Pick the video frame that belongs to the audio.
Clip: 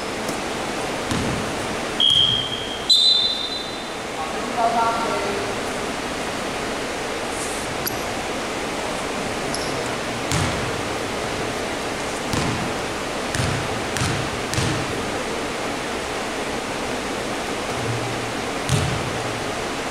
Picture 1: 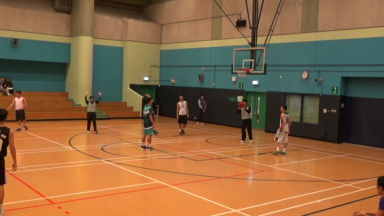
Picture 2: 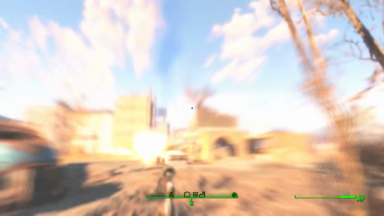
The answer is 1